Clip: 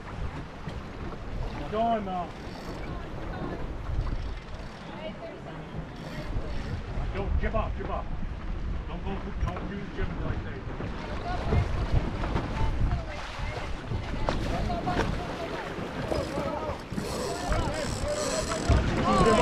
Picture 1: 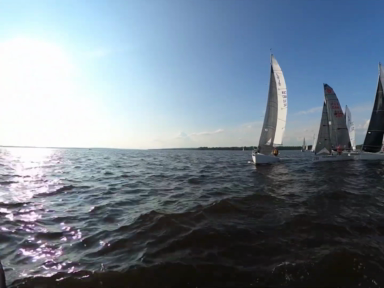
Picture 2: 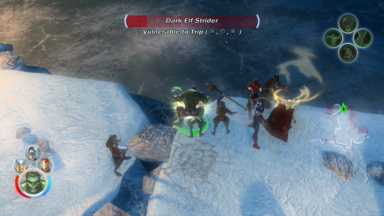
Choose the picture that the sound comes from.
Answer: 1